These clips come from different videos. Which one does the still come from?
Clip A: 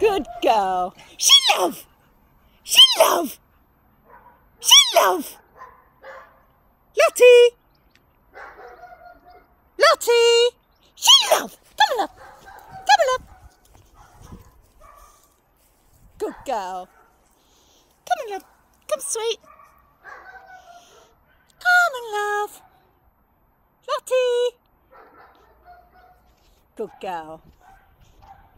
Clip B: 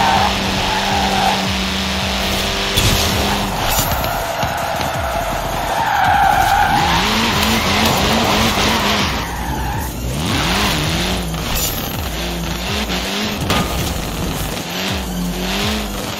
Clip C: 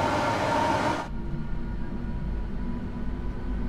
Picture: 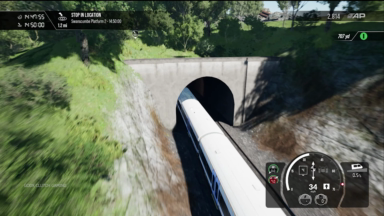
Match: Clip C